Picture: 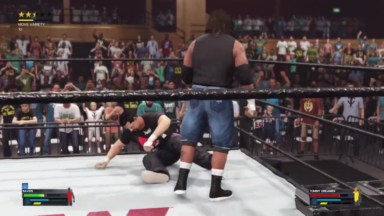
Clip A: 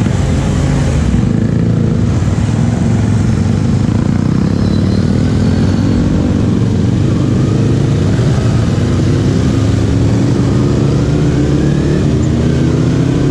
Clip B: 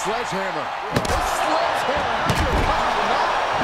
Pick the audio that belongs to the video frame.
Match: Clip B